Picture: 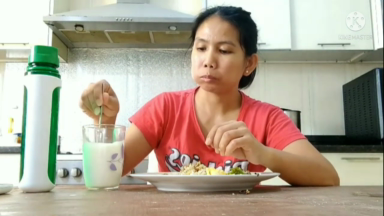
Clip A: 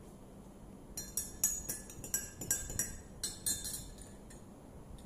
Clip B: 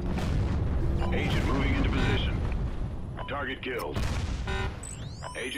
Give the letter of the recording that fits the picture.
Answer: A